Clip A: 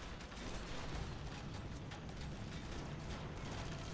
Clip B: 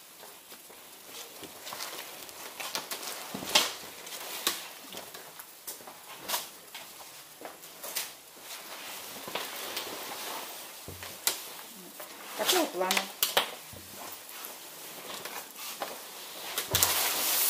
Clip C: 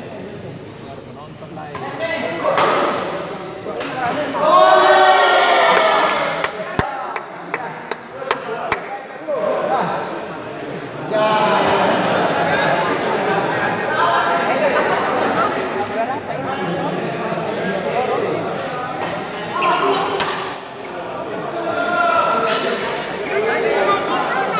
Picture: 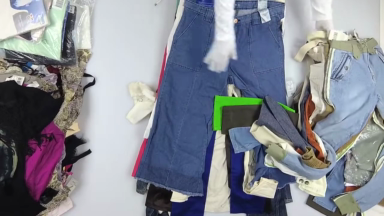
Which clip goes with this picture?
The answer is B